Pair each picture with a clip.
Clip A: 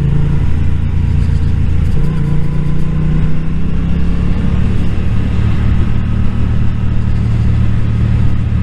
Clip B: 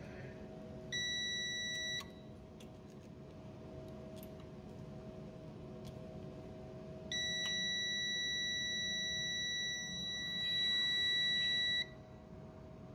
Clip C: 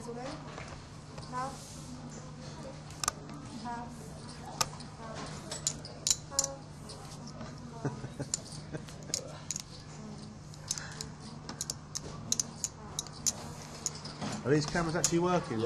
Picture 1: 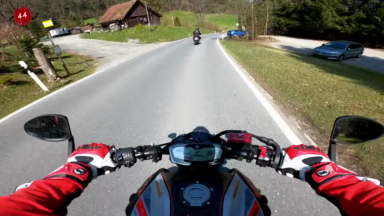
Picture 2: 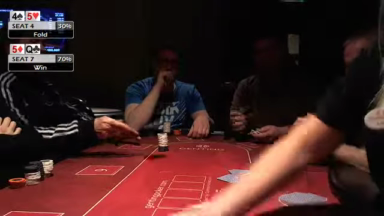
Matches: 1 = A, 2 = C